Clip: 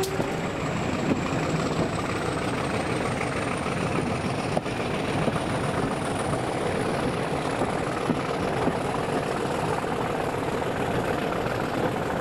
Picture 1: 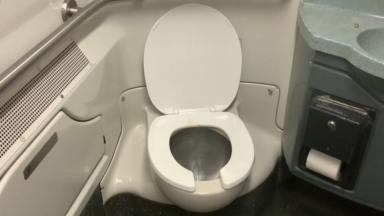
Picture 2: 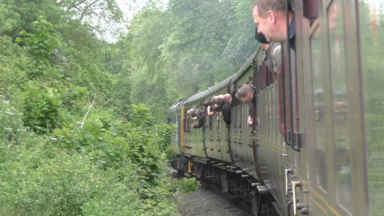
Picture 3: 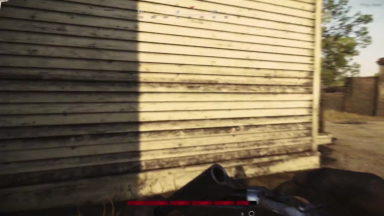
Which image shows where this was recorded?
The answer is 2